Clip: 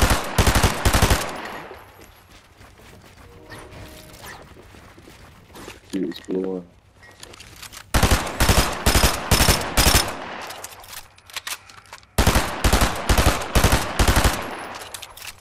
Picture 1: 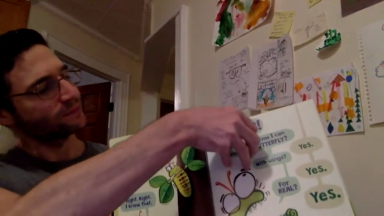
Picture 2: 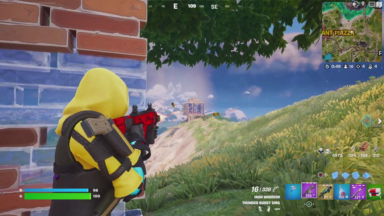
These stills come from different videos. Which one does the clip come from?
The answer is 2